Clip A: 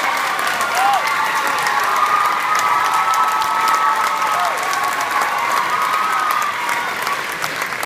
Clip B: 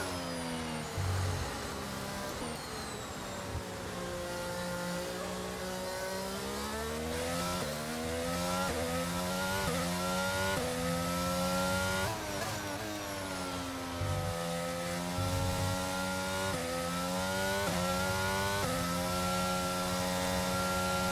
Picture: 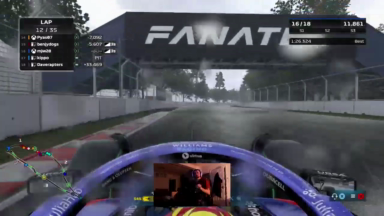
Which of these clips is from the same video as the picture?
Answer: B